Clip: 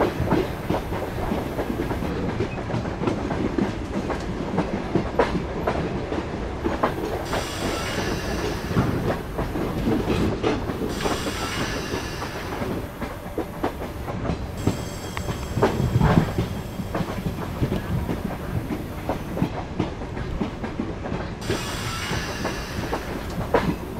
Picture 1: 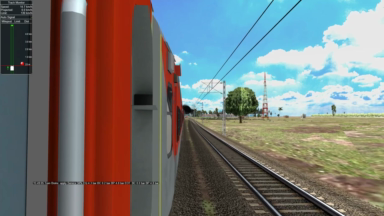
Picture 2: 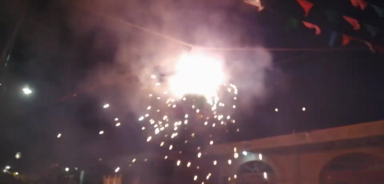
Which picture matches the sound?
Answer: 1